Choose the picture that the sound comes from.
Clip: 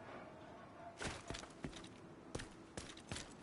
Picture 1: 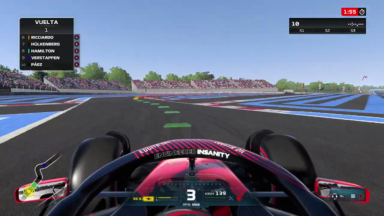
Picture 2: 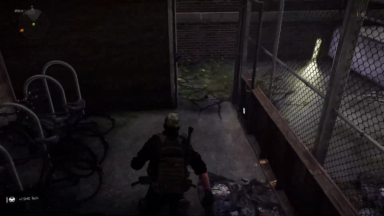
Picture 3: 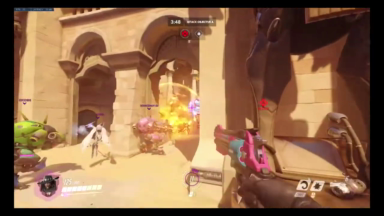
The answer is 2